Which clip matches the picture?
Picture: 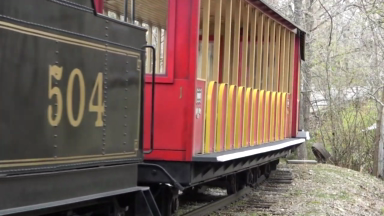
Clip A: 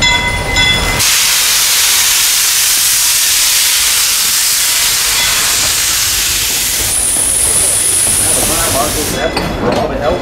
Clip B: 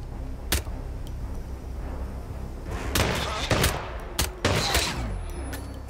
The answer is A